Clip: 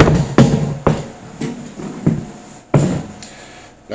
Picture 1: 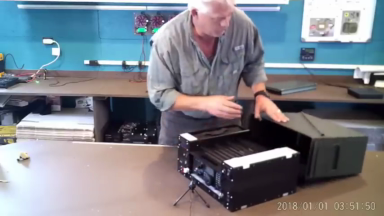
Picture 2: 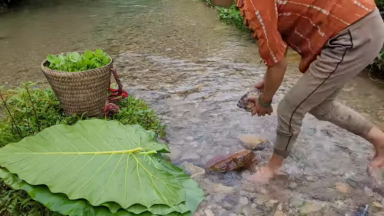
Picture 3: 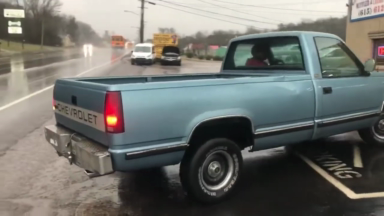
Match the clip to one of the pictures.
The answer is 1